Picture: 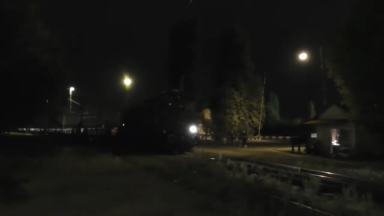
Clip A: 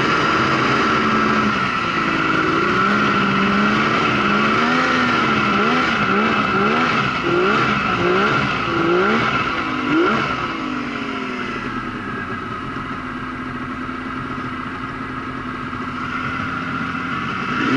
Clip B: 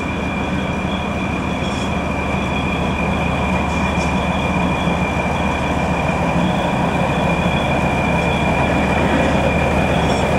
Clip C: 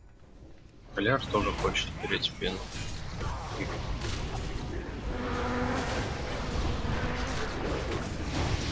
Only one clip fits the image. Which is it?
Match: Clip B